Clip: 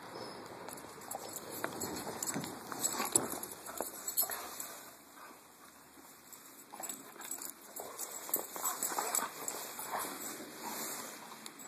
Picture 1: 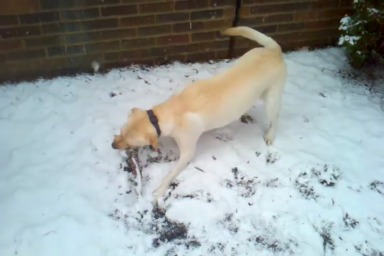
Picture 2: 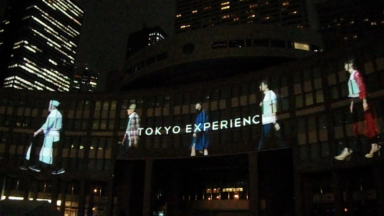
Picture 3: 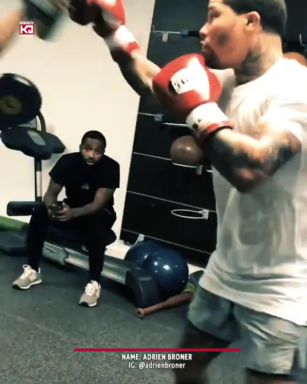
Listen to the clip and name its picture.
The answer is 1